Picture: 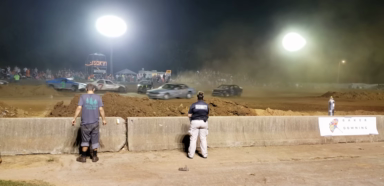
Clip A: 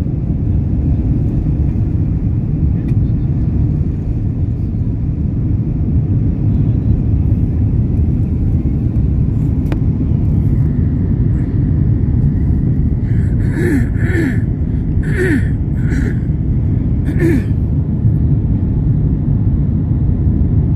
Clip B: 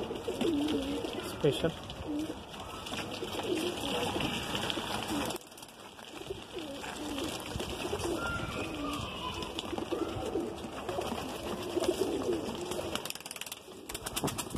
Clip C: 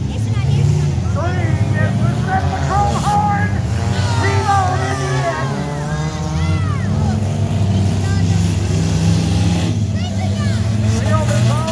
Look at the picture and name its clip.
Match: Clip C